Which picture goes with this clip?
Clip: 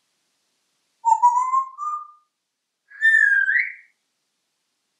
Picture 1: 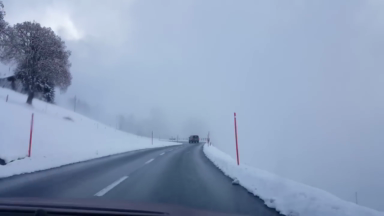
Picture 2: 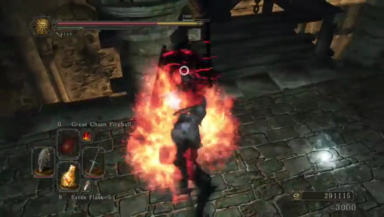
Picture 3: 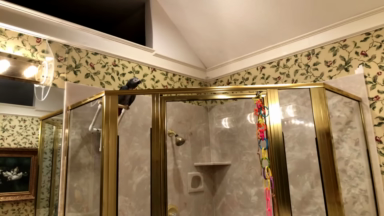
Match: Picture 3